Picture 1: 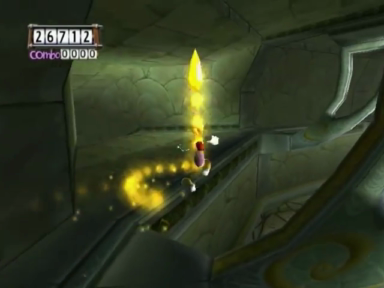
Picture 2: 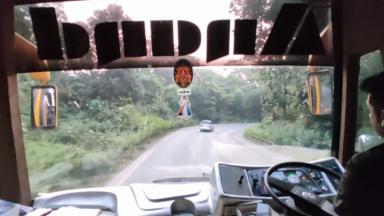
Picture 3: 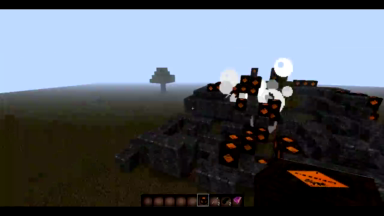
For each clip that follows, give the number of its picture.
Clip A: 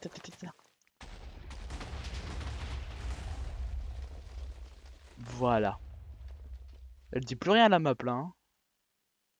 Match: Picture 3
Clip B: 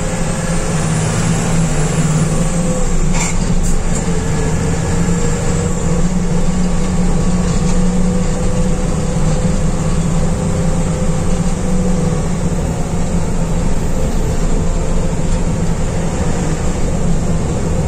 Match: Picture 2